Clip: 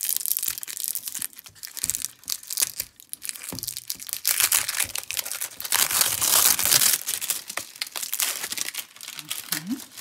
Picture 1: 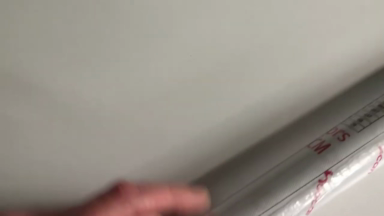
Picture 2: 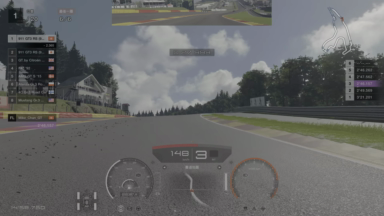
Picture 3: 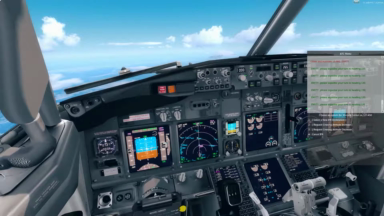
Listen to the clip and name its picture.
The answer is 1